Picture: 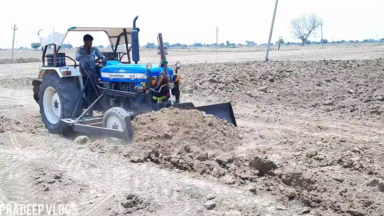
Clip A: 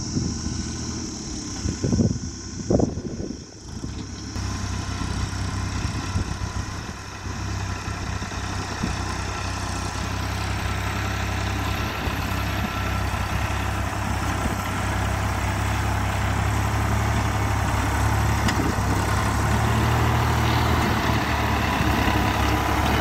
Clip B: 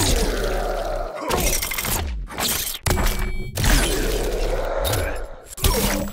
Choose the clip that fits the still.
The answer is A